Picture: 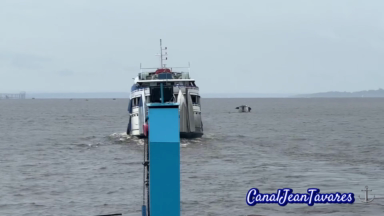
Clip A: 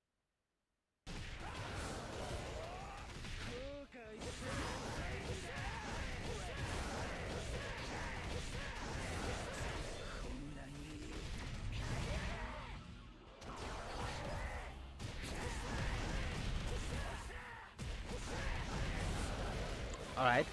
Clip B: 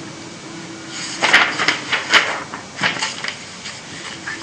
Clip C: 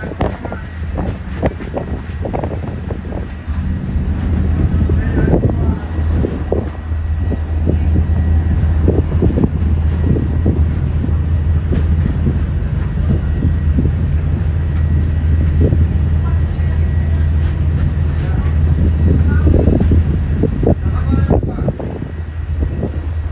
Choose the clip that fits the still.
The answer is C